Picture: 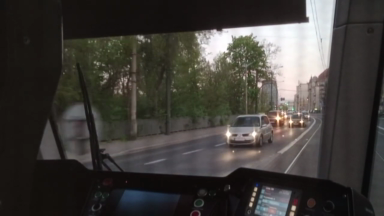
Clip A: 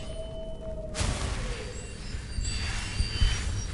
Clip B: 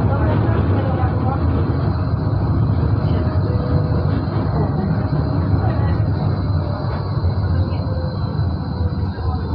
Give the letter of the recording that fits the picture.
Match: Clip B